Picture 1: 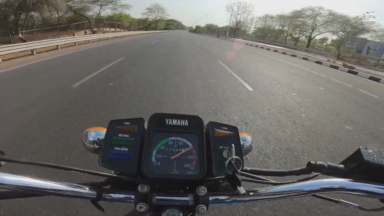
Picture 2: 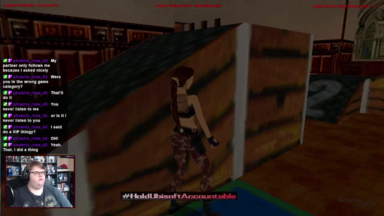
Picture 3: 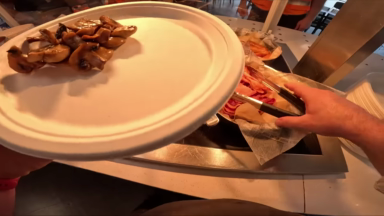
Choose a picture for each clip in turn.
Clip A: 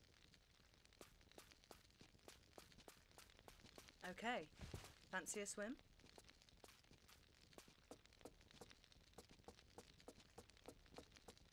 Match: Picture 2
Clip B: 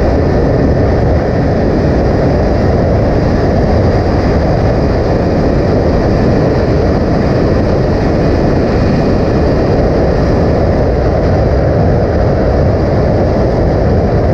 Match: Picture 1